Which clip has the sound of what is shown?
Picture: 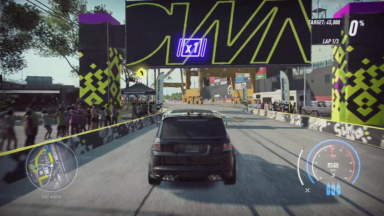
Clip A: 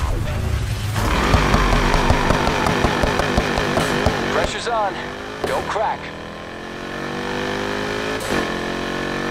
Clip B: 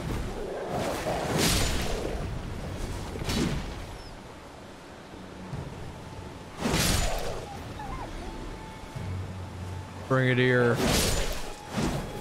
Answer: A